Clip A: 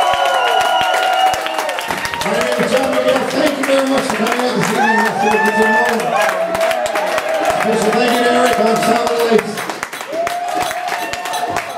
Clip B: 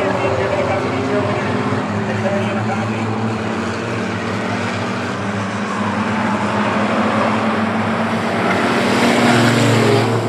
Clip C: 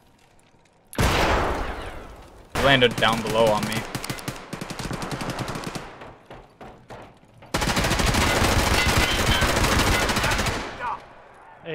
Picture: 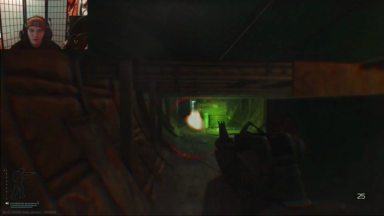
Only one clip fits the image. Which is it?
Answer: C